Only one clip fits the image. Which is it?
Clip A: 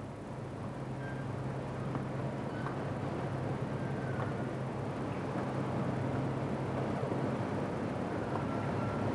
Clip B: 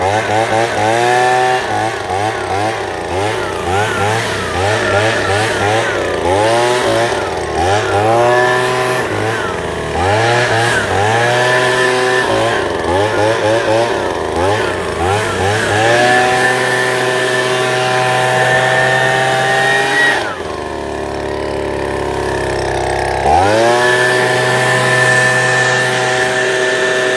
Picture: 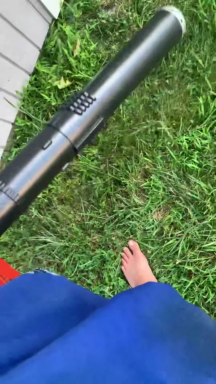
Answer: B